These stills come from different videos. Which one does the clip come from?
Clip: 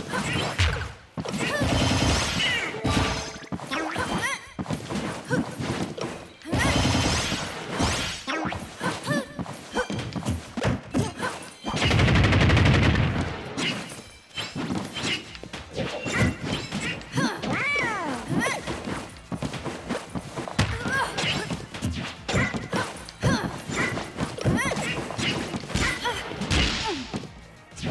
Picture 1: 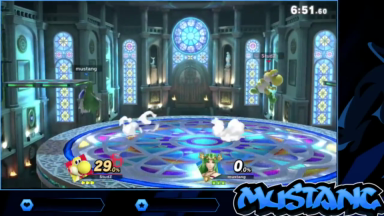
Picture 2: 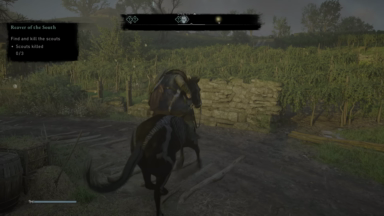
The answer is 1